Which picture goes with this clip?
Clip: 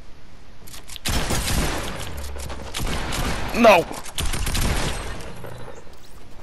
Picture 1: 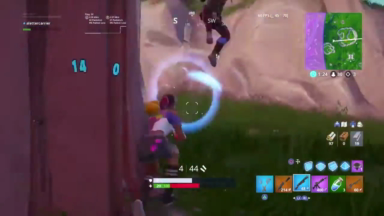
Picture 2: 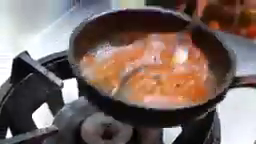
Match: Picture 1